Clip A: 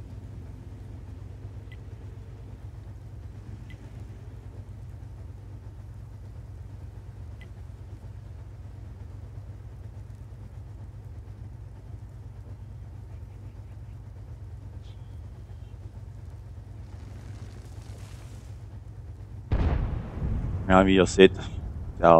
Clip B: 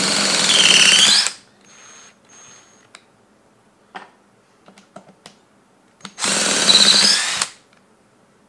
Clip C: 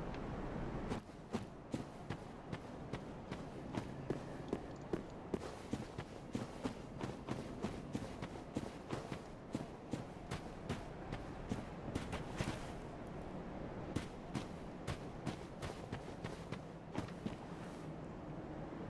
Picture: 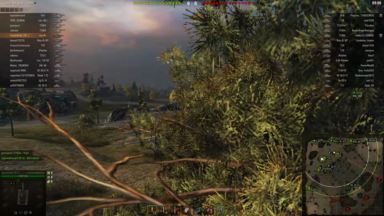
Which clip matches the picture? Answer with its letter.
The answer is A